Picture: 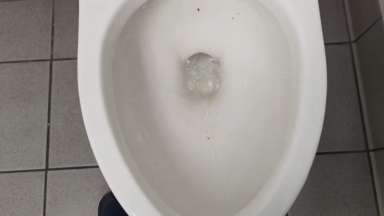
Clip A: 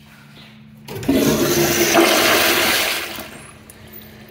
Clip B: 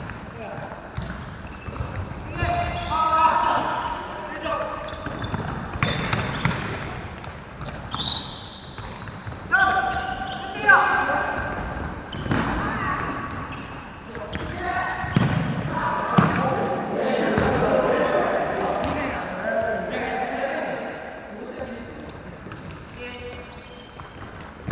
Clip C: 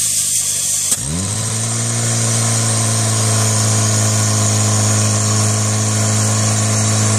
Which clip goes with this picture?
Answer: A